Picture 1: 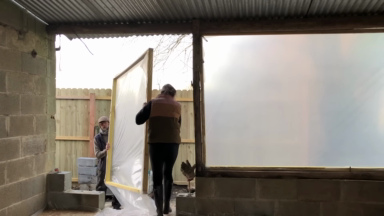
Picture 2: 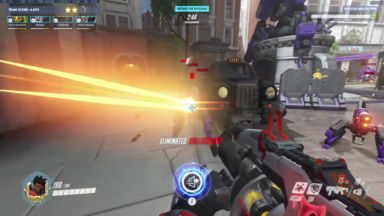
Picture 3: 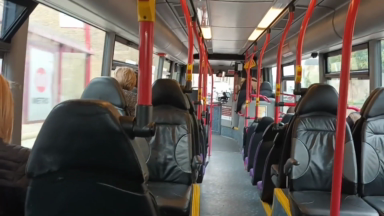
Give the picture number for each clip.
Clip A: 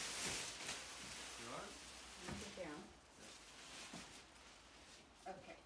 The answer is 1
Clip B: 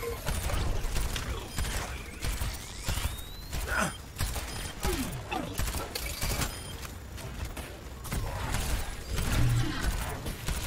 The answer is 2